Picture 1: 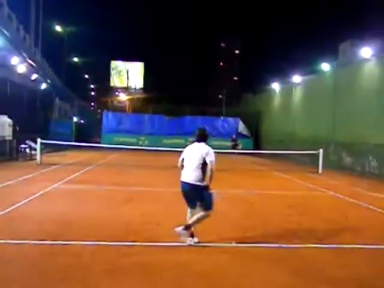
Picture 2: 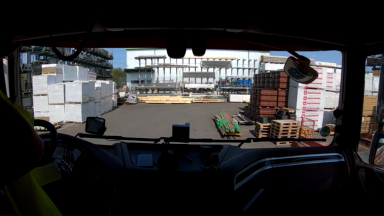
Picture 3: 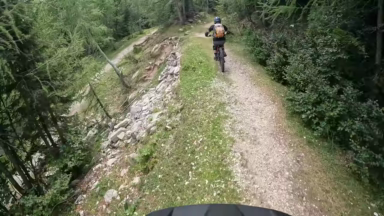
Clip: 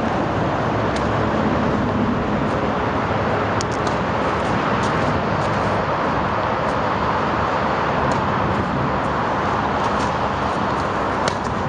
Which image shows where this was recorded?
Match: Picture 1